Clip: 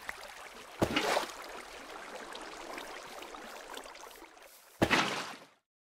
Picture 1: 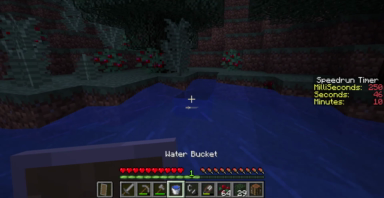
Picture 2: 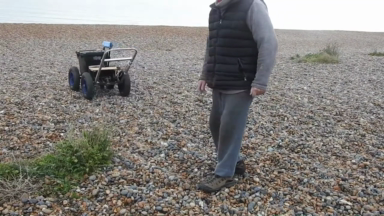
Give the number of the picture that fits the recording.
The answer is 1